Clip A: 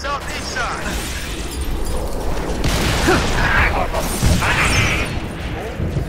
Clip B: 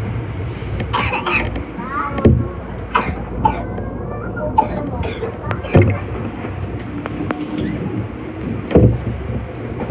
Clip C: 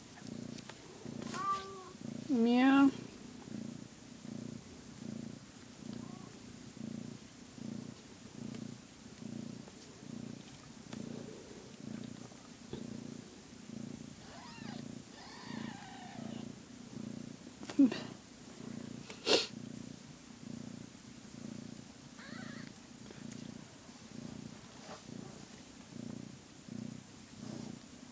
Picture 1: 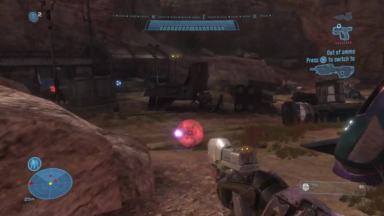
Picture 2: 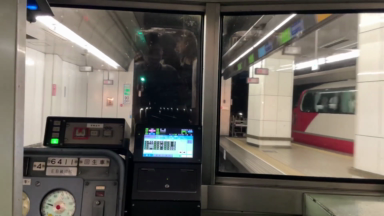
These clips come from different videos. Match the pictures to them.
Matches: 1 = A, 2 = B